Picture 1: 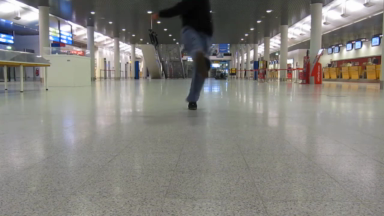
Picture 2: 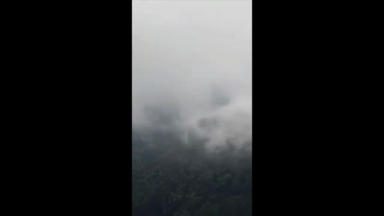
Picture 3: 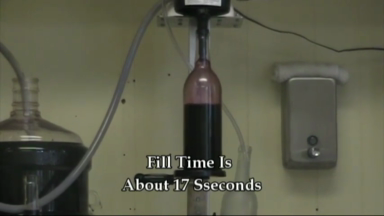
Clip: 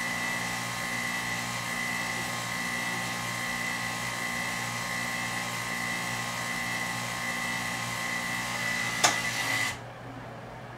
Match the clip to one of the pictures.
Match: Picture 3